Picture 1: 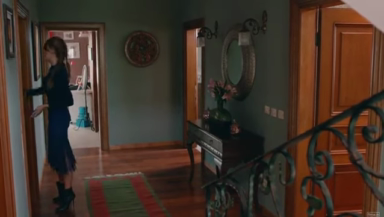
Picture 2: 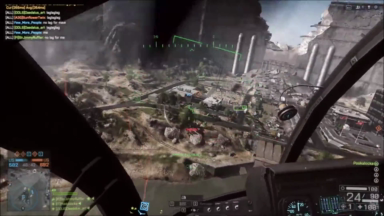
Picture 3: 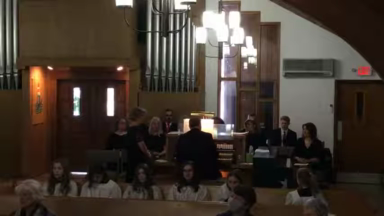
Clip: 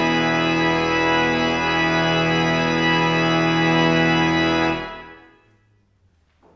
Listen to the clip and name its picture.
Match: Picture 3